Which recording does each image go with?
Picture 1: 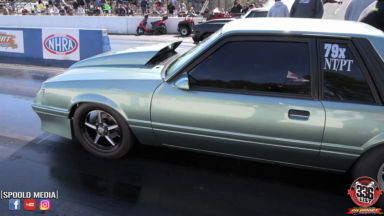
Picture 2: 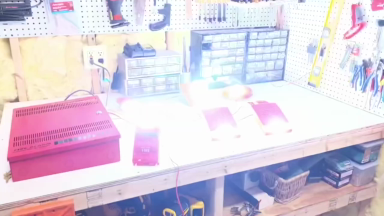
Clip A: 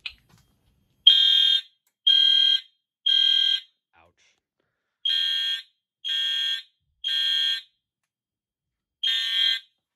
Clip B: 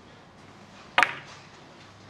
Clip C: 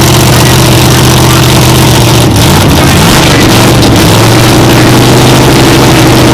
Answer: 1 C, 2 A